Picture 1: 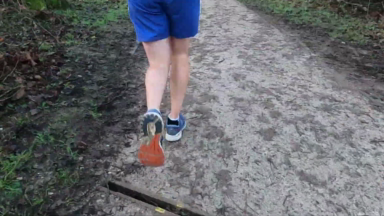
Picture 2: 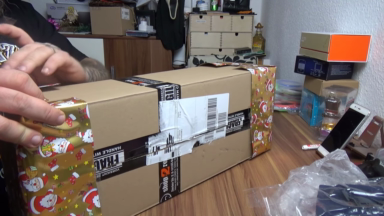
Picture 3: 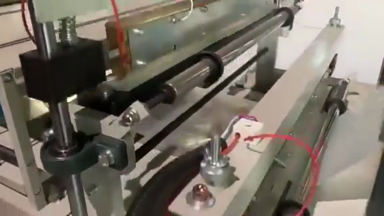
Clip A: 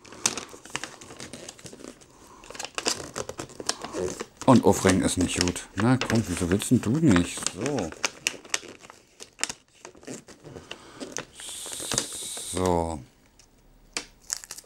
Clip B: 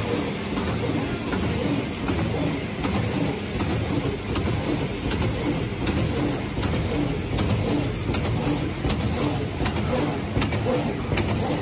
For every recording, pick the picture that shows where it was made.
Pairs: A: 2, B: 3